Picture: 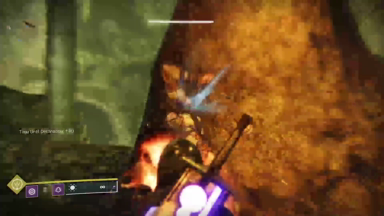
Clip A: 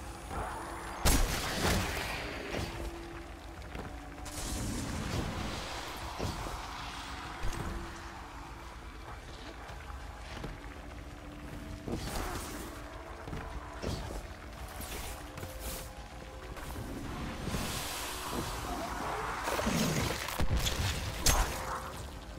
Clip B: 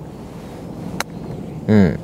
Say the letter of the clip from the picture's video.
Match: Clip A